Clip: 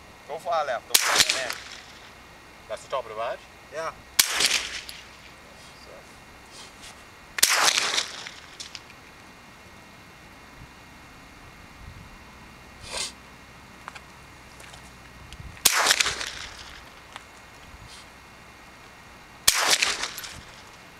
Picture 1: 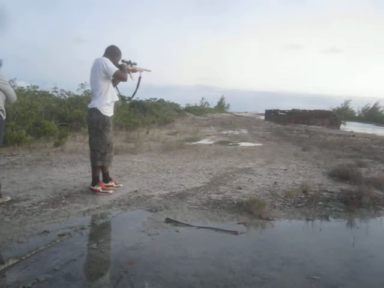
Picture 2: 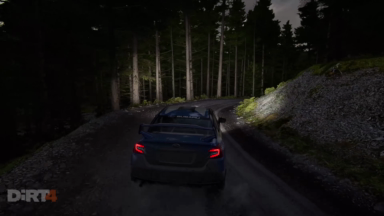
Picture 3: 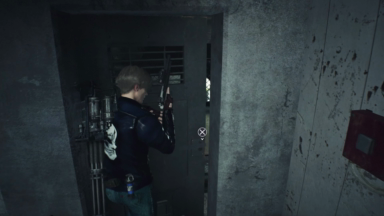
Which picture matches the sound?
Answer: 1